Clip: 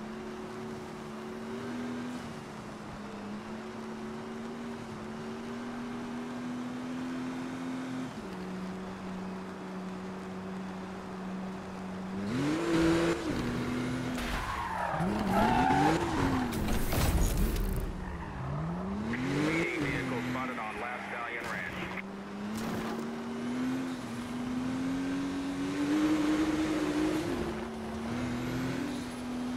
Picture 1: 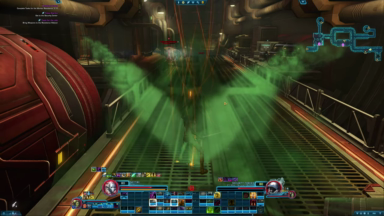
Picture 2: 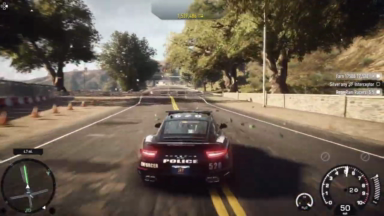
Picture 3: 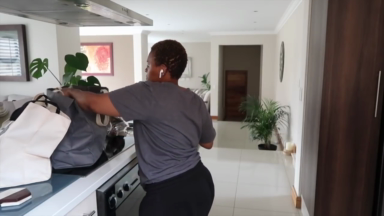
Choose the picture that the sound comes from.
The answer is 2